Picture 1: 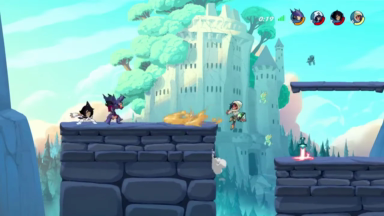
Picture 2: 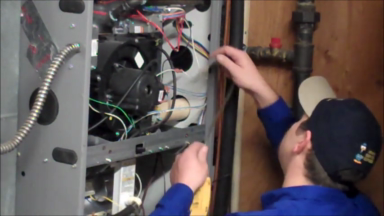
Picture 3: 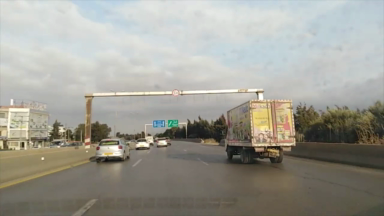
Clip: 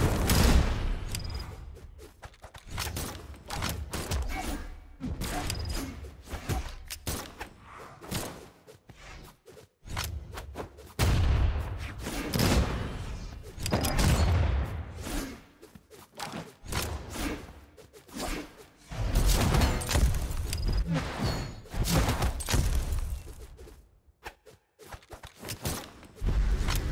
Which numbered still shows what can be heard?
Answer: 1